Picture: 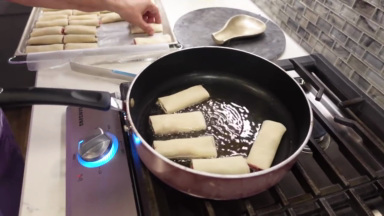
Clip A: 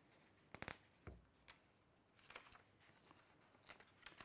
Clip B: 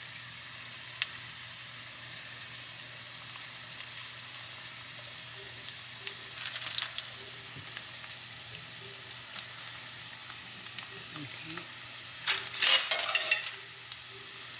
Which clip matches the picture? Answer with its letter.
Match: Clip B